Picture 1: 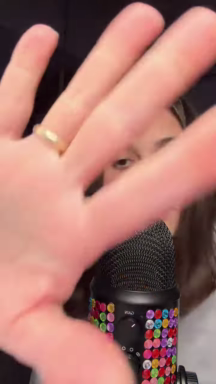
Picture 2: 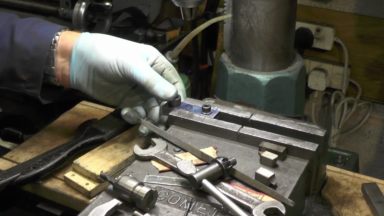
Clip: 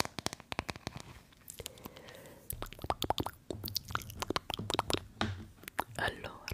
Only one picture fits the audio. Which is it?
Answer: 1